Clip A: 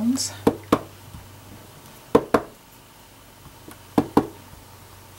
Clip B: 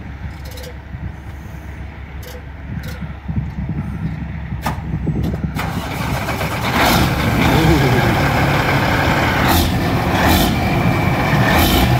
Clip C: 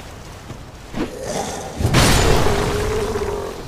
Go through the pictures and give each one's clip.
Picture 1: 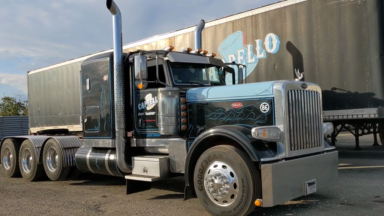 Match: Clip B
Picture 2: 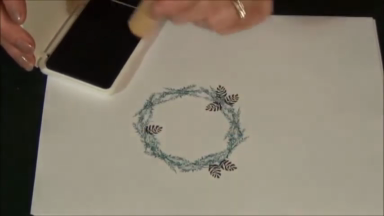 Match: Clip A